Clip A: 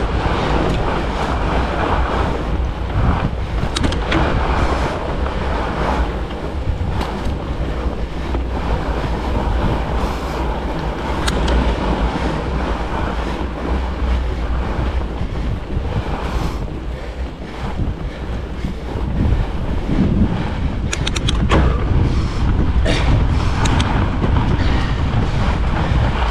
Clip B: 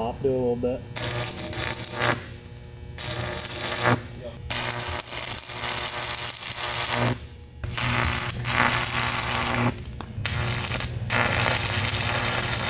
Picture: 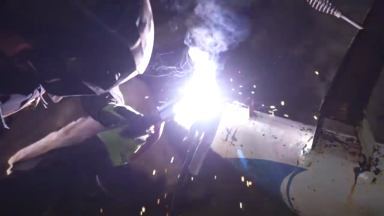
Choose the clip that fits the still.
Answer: B